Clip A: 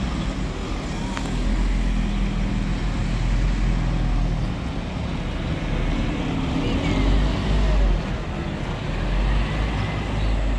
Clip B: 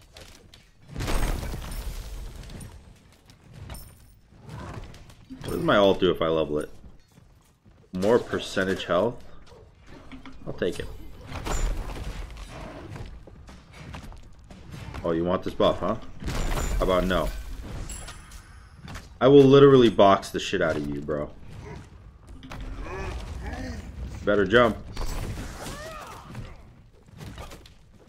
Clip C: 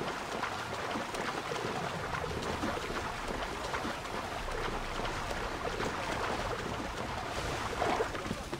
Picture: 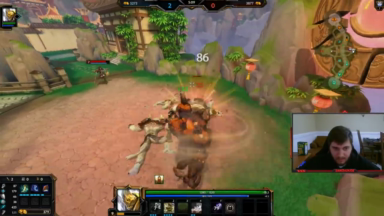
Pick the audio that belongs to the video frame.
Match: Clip B